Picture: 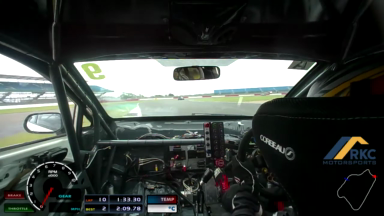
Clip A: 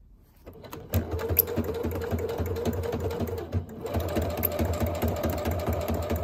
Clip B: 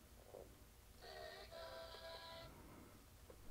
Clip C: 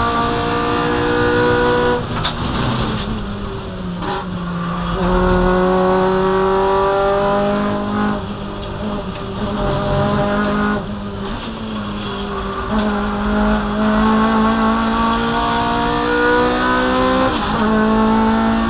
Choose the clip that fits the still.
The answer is C